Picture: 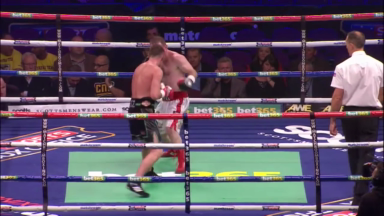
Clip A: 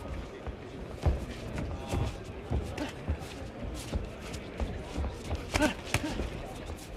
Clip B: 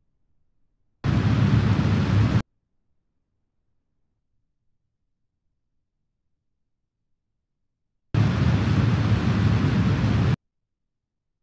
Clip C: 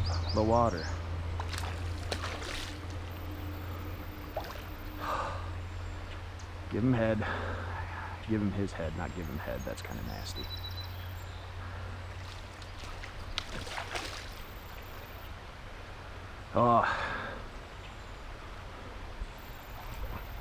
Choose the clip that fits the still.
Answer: A